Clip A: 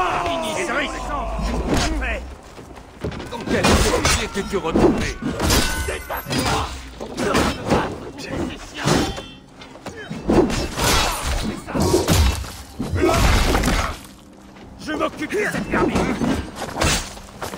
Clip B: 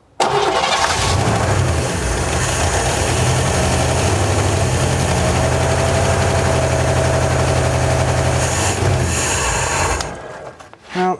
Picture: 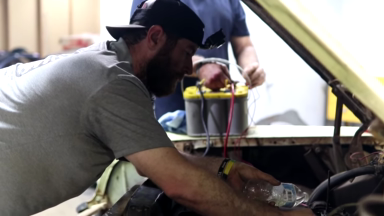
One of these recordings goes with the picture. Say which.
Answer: B